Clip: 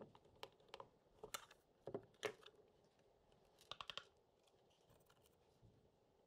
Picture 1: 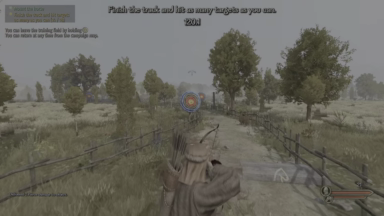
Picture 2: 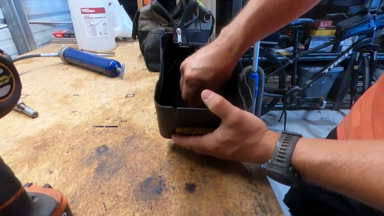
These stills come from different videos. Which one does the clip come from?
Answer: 2